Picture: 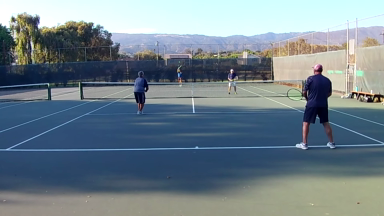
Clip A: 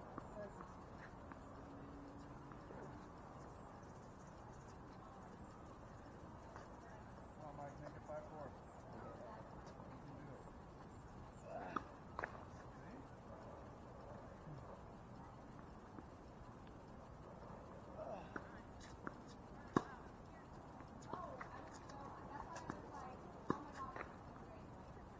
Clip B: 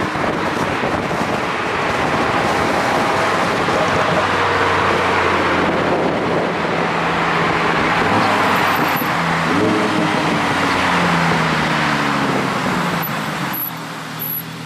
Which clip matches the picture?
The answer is A